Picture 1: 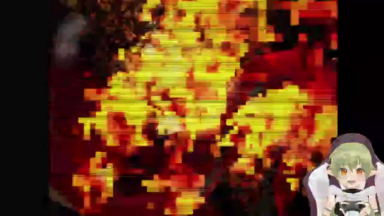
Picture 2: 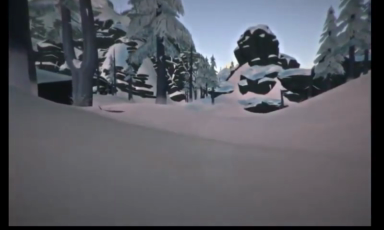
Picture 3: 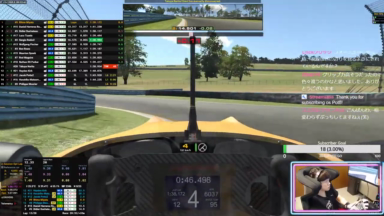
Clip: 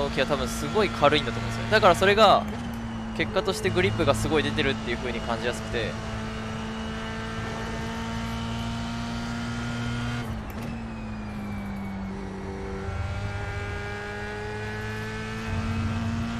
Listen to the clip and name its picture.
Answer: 3